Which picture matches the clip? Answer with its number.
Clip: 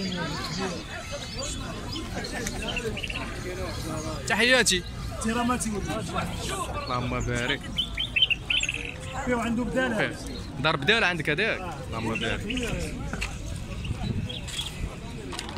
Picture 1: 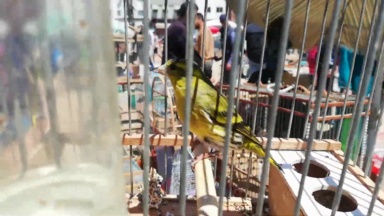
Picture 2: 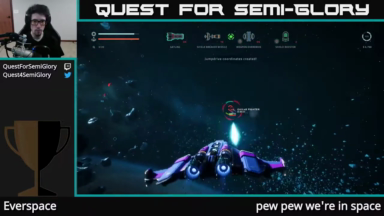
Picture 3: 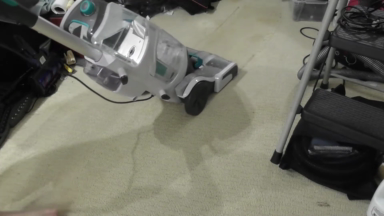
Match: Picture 1